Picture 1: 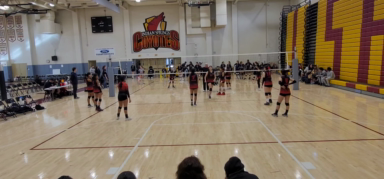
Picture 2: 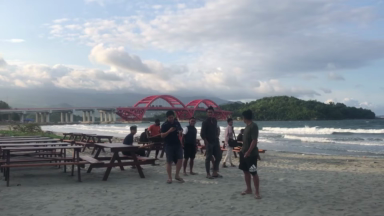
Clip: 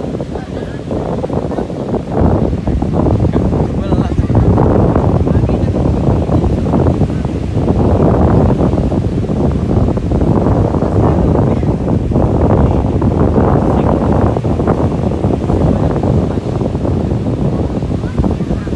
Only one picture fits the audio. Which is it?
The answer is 2